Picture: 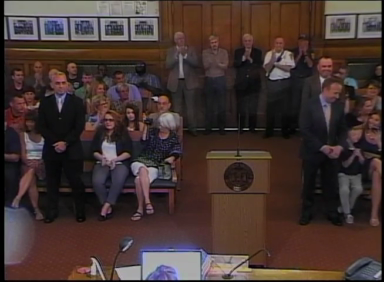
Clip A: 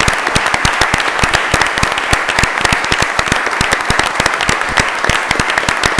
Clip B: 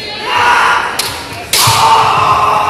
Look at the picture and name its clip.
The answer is A